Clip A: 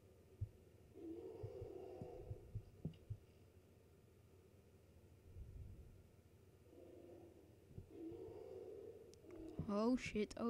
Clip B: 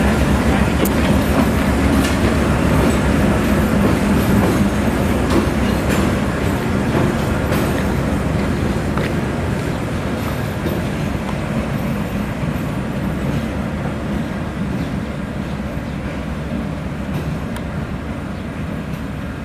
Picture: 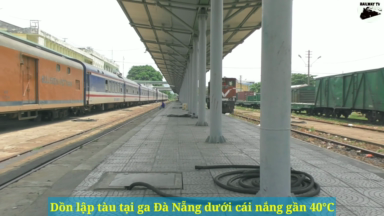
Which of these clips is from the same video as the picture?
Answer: B